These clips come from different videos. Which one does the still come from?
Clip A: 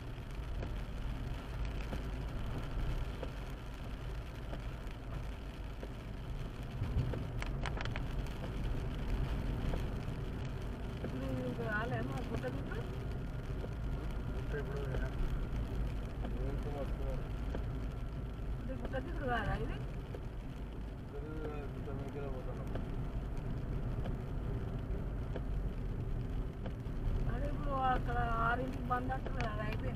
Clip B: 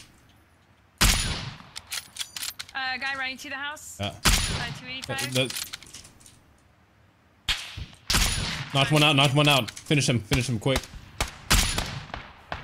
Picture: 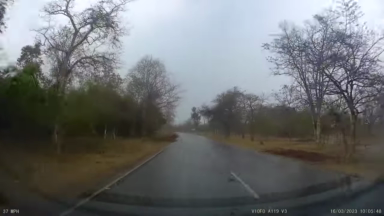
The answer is A